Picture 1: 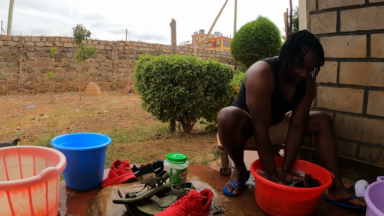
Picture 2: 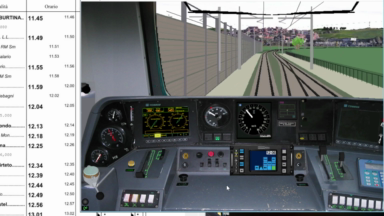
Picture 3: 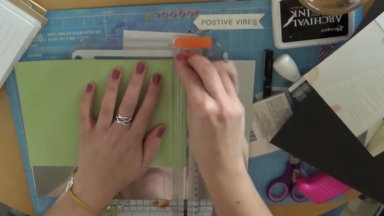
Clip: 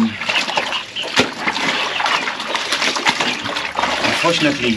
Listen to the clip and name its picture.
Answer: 1